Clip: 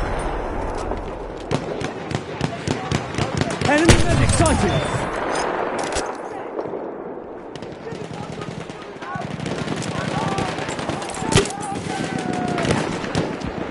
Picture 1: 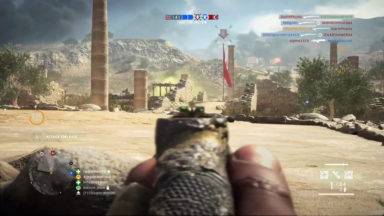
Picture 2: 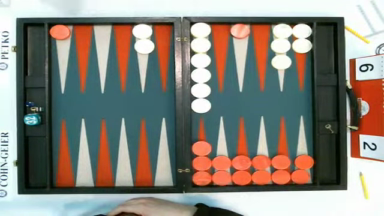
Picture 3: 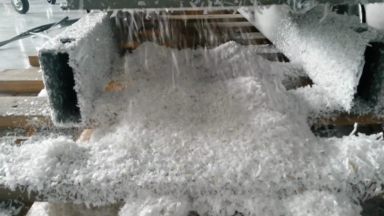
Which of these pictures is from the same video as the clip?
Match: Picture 1